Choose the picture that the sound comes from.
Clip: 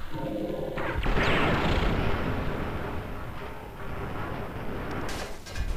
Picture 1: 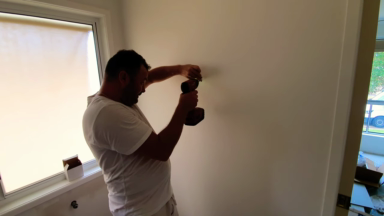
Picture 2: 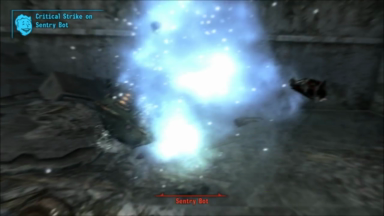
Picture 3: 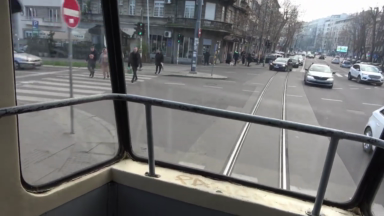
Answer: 2